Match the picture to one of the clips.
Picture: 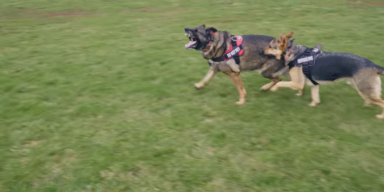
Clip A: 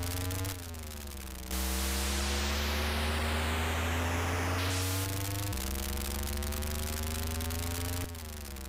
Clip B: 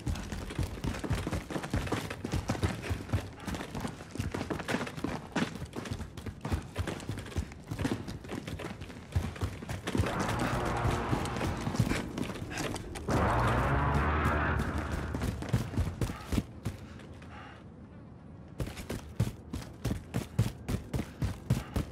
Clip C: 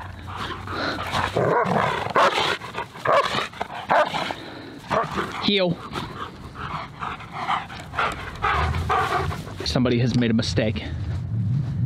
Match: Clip C